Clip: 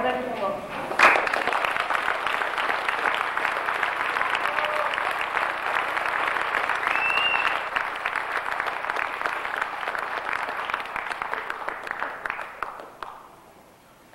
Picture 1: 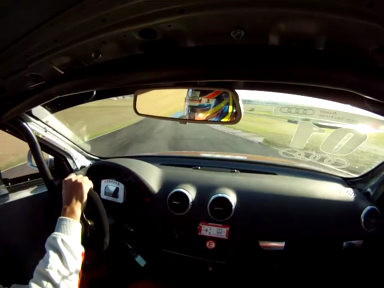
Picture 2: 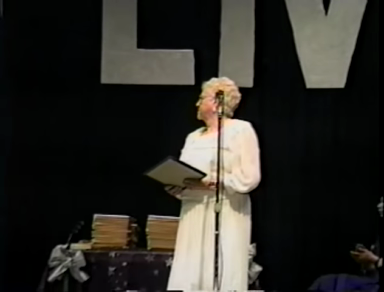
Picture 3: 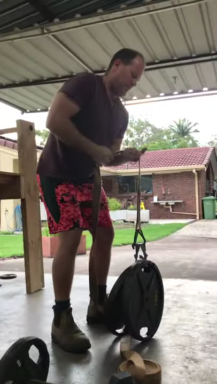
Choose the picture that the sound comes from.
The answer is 2